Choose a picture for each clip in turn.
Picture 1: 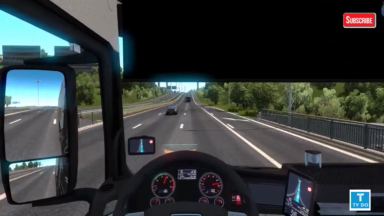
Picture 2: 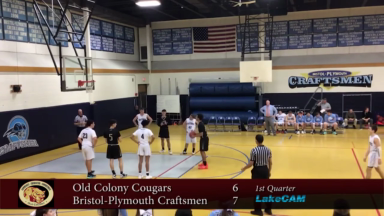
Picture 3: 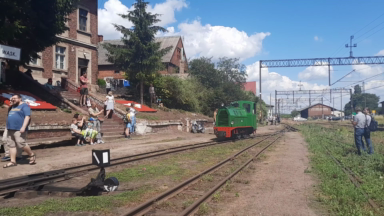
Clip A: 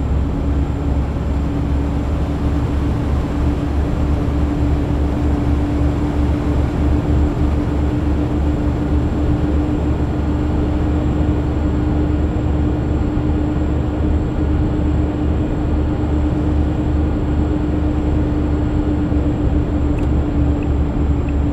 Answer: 1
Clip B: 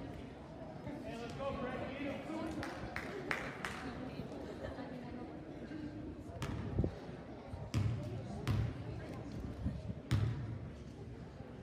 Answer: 2